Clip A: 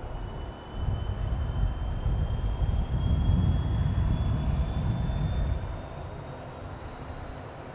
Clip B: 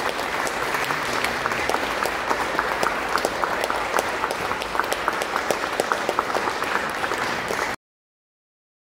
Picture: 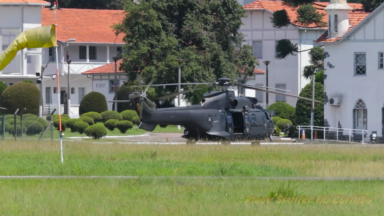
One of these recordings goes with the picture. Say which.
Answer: A